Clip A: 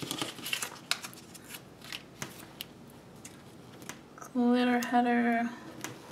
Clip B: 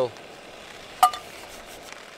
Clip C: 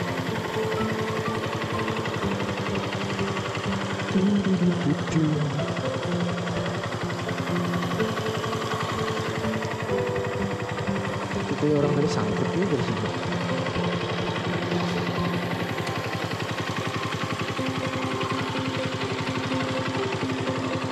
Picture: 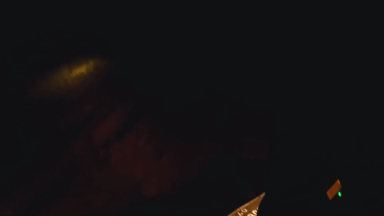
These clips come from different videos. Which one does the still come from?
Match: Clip C